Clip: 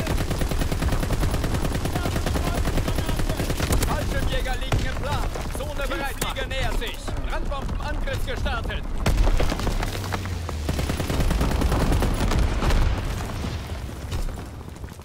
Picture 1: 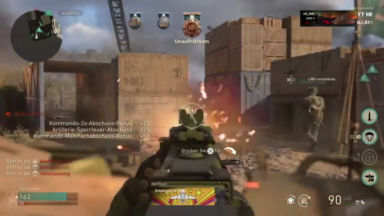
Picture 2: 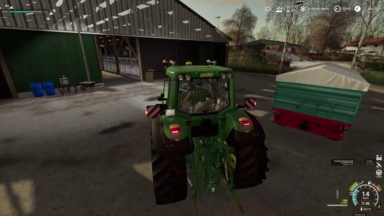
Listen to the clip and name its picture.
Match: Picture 1